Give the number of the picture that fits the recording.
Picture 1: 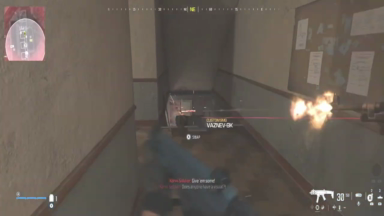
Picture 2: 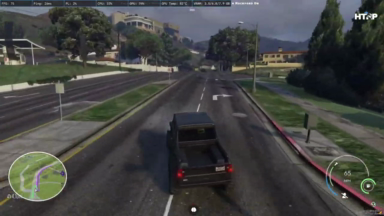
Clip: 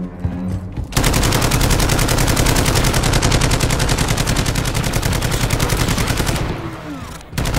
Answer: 1